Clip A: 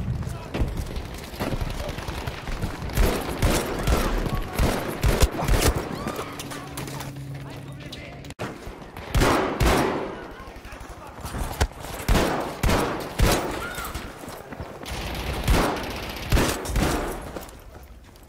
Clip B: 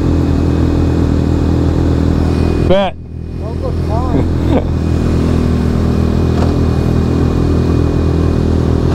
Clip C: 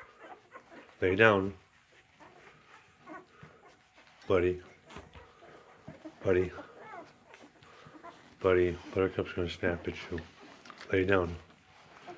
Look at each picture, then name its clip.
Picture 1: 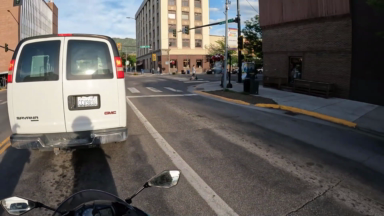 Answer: B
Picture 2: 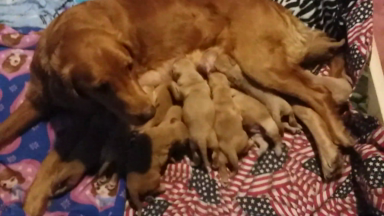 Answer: C